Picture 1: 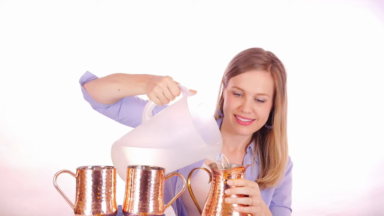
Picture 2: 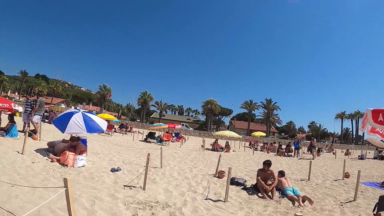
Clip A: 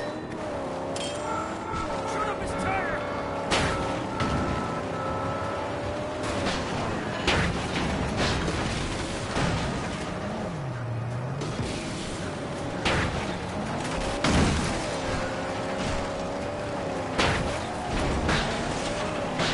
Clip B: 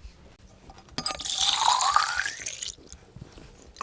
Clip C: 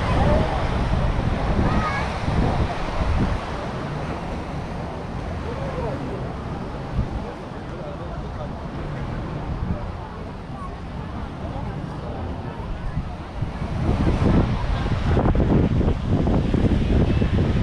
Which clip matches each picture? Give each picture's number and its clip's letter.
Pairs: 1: B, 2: C